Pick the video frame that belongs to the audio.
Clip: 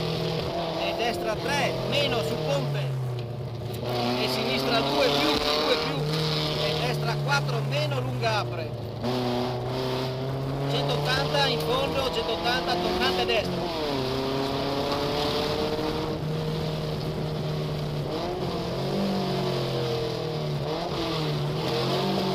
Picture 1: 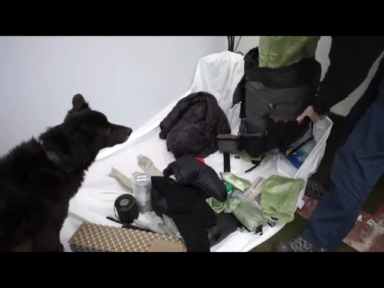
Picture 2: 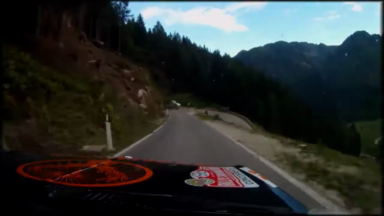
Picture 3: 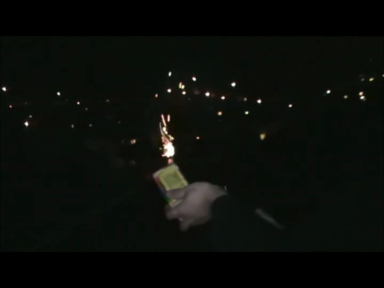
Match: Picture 2